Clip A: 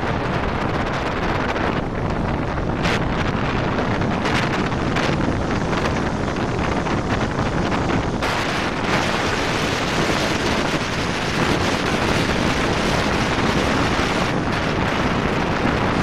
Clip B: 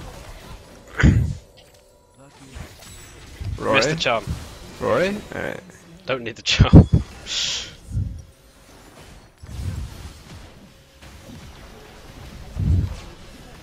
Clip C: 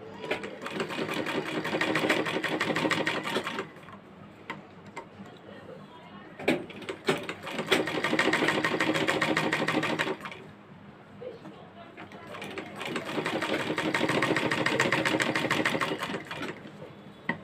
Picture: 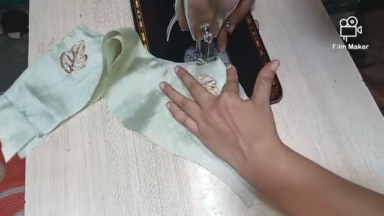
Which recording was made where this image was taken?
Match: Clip C